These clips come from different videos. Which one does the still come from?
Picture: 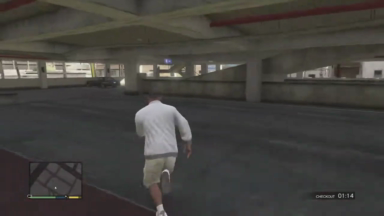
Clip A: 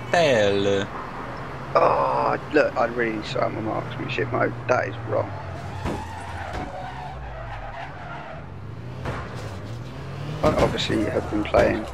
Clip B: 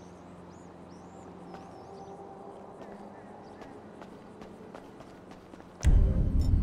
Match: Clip B